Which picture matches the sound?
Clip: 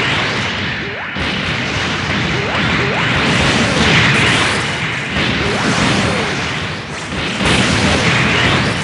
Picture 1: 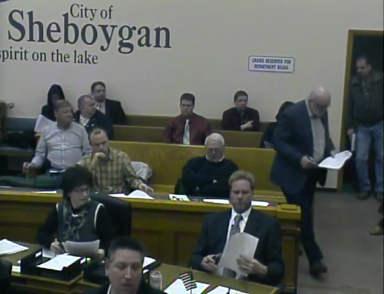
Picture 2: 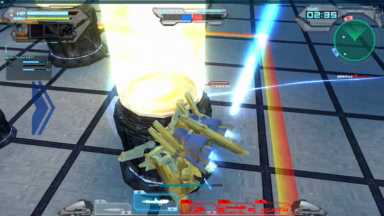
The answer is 2